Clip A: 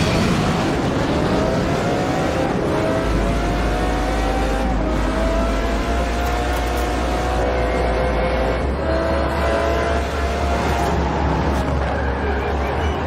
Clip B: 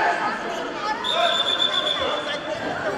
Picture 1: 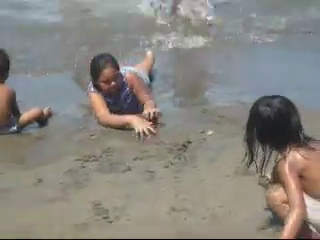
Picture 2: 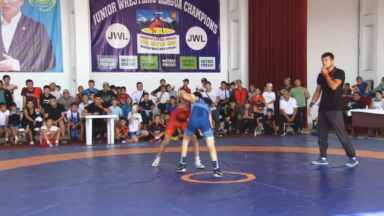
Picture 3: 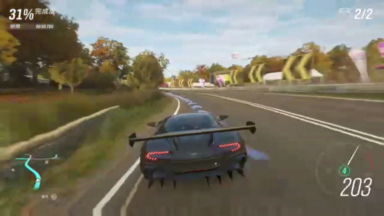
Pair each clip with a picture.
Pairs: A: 3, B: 2